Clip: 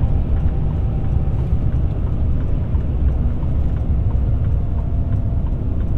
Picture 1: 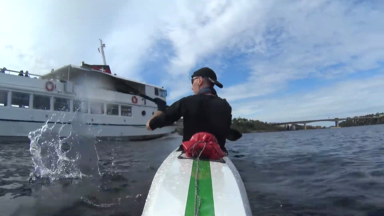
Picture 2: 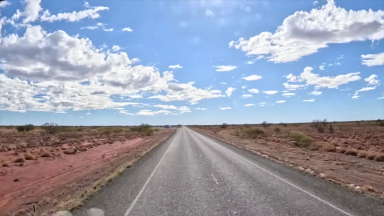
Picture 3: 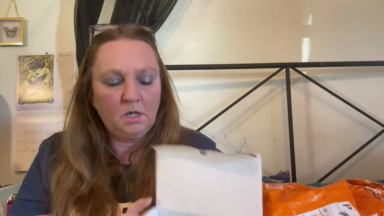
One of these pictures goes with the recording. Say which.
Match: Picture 2